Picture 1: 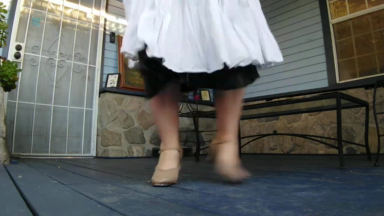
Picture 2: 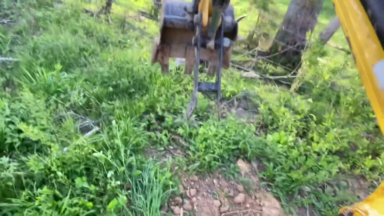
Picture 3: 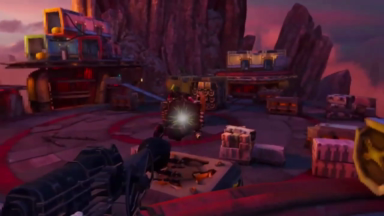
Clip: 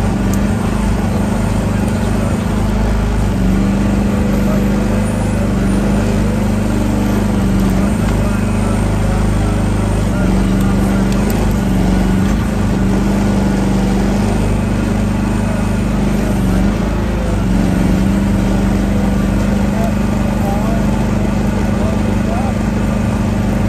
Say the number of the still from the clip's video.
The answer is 2